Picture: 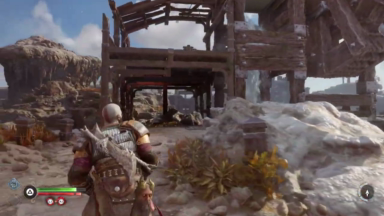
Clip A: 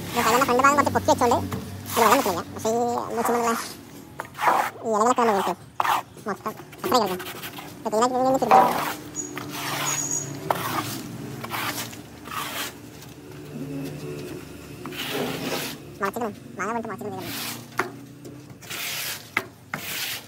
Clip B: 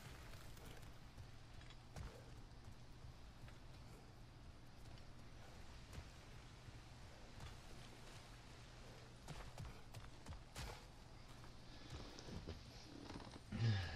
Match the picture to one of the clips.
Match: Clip B